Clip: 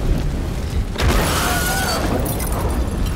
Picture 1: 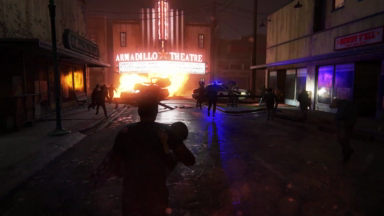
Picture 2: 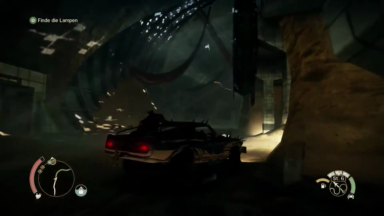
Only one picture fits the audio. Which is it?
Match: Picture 1